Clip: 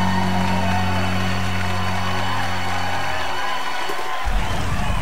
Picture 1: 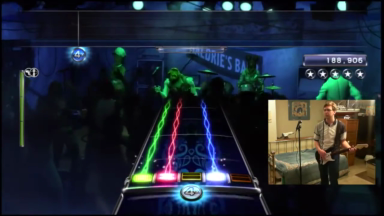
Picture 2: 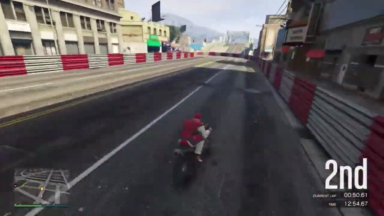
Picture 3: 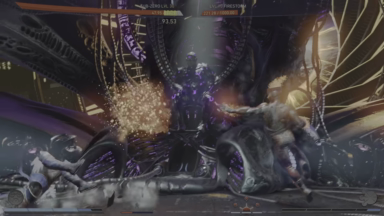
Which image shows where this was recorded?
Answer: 1